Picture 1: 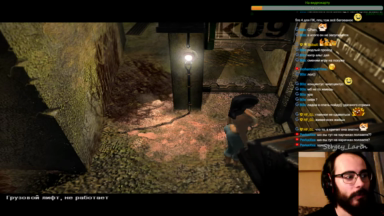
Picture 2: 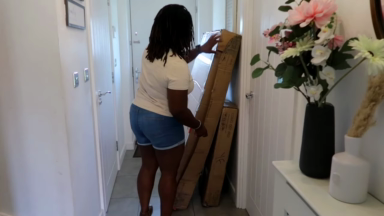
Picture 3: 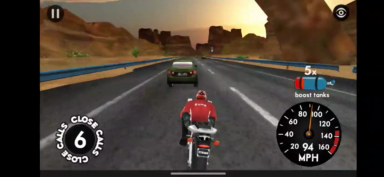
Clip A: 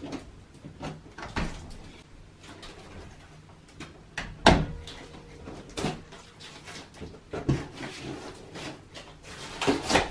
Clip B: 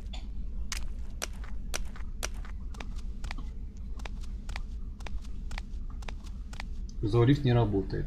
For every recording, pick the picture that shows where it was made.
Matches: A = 2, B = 1